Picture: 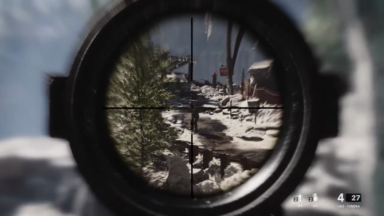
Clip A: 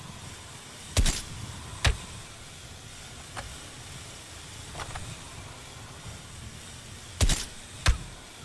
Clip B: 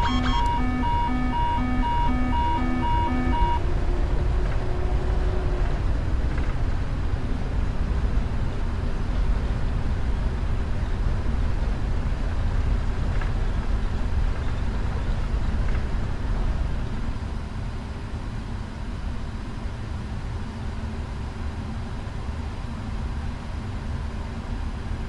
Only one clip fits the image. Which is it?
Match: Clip A